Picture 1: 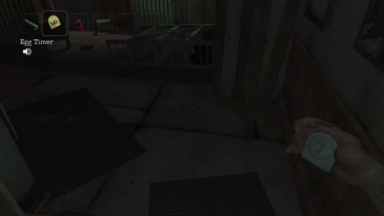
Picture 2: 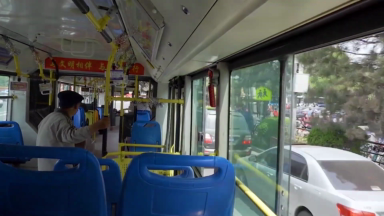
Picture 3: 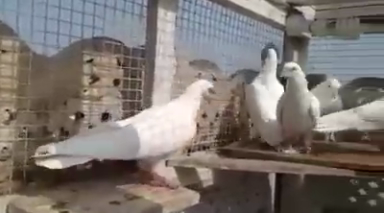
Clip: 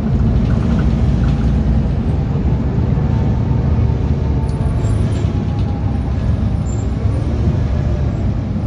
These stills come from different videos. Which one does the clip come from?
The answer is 2